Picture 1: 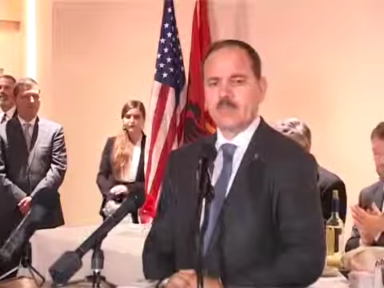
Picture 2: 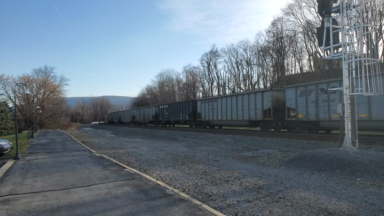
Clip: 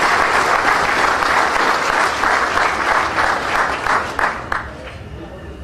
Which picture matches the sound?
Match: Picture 1